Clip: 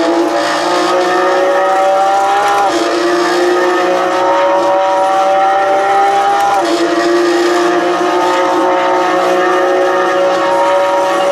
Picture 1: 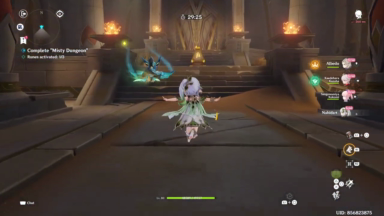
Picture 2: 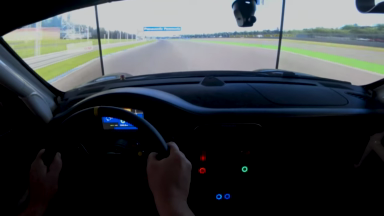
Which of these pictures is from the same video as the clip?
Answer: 2